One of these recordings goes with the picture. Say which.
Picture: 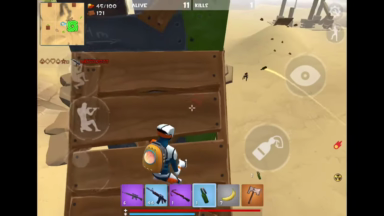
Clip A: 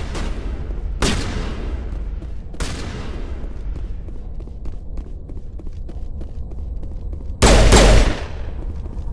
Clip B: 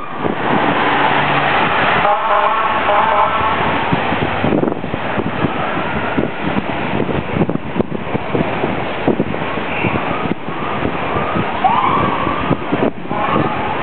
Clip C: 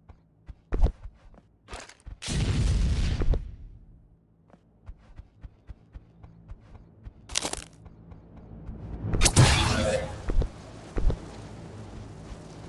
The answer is C